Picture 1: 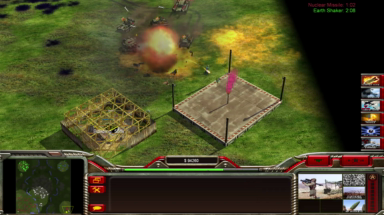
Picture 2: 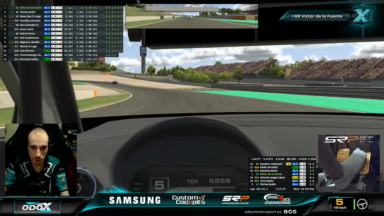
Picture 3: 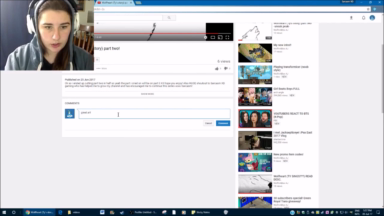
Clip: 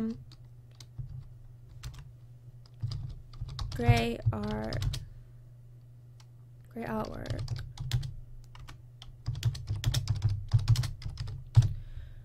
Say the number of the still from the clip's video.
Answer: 3